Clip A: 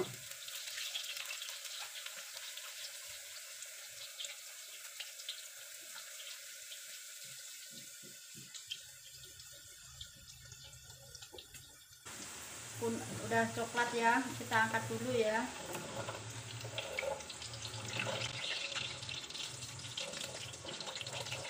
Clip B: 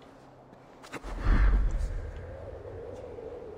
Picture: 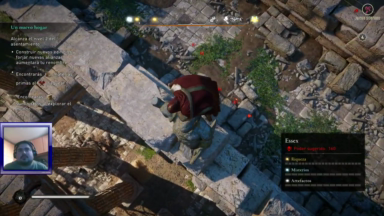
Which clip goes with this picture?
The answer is B